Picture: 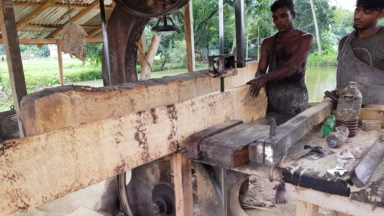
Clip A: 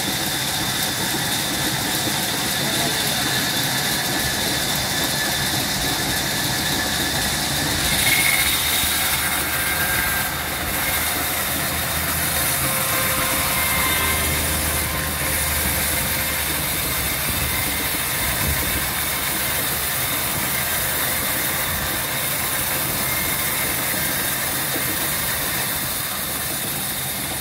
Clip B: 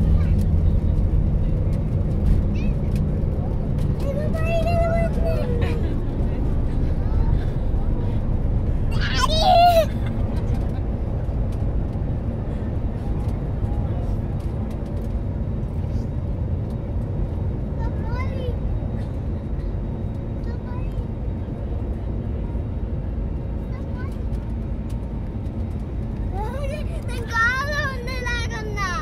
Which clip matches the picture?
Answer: A